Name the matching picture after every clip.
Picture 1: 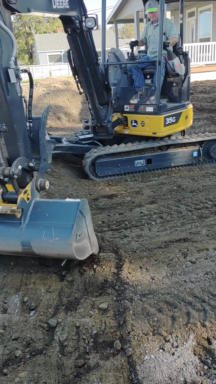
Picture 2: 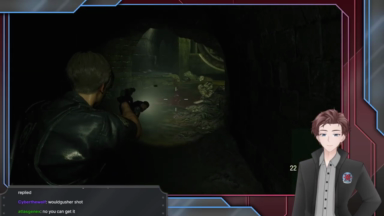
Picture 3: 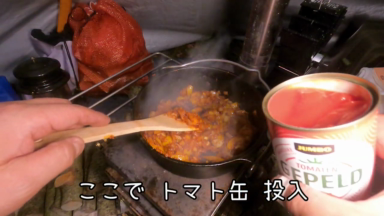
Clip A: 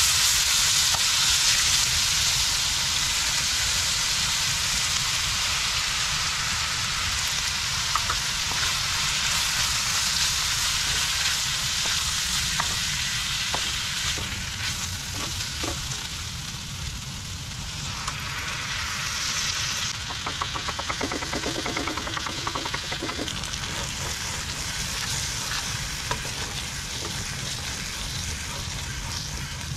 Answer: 3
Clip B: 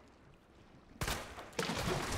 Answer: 2